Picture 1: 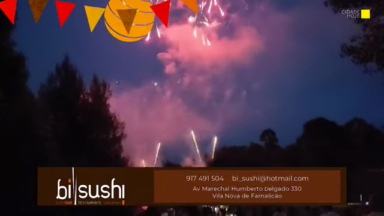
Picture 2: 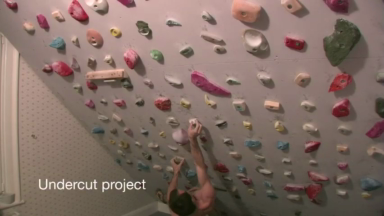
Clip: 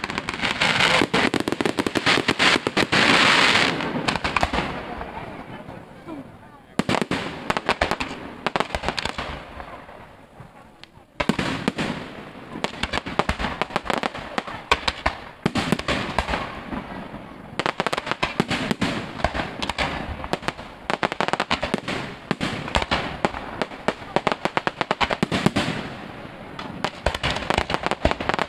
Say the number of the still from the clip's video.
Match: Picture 1